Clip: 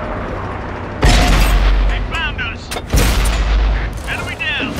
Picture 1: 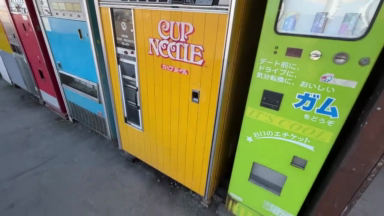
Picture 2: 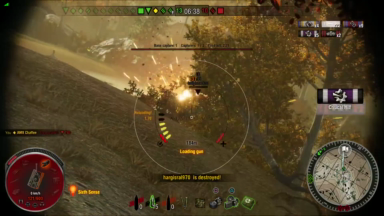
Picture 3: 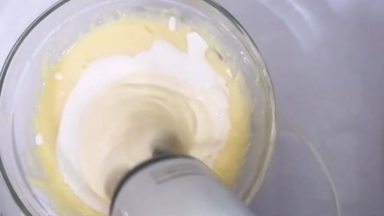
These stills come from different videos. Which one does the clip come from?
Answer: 2